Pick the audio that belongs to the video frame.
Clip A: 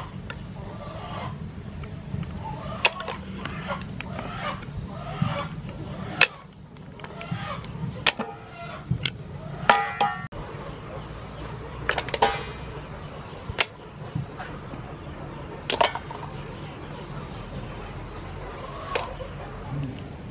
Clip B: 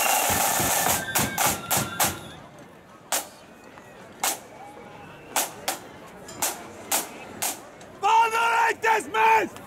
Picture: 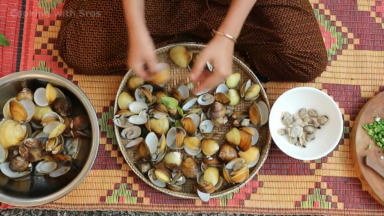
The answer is A